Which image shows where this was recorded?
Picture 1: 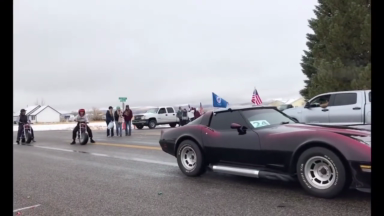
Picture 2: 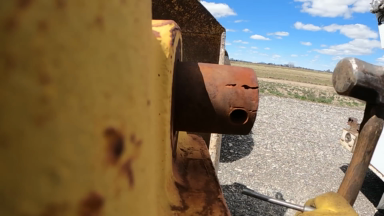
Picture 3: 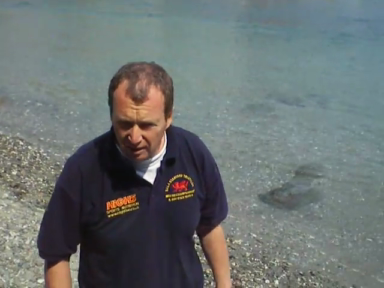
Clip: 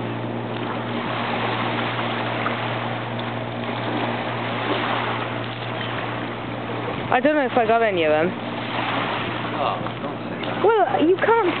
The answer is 3